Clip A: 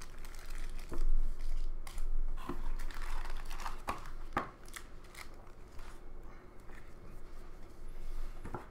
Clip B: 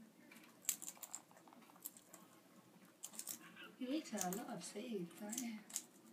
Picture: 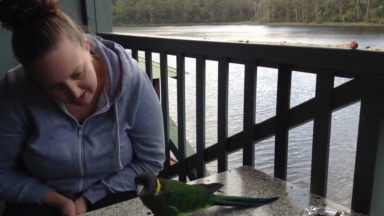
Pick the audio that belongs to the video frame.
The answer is B